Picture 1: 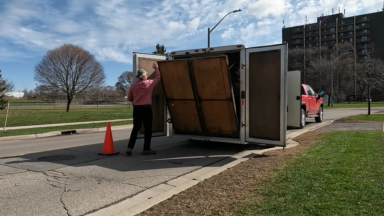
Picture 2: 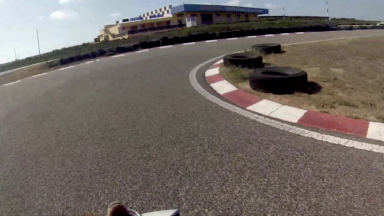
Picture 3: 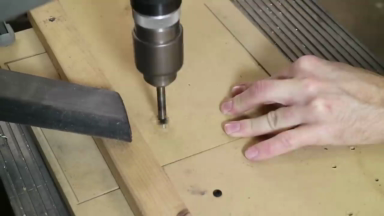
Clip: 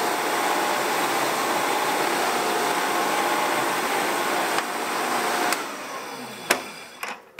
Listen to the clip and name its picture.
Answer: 3